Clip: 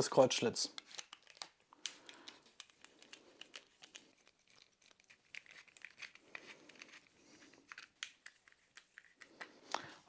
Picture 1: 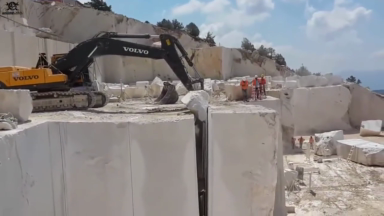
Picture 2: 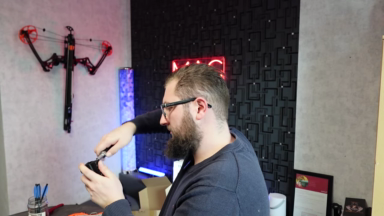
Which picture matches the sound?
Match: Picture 2